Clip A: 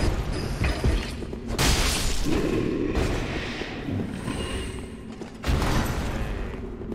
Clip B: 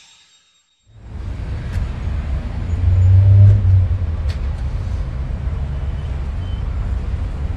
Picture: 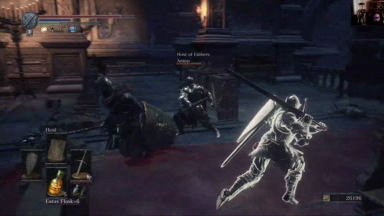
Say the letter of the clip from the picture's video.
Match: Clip A